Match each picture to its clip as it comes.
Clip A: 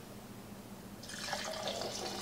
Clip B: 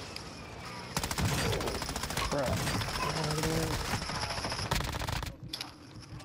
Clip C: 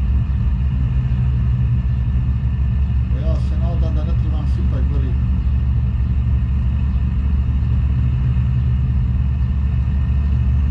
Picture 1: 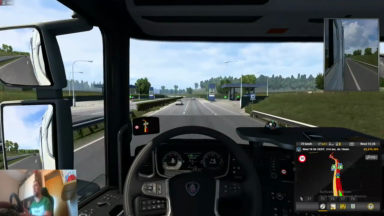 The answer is C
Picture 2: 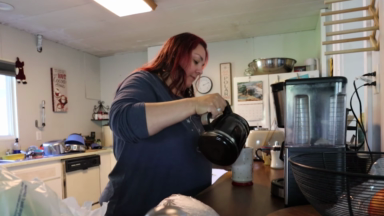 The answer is A